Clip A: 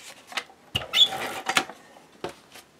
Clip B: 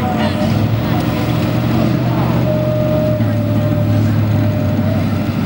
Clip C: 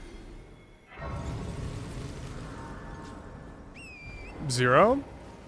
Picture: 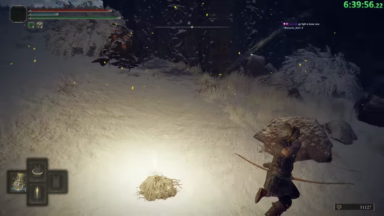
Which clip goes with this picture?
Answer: C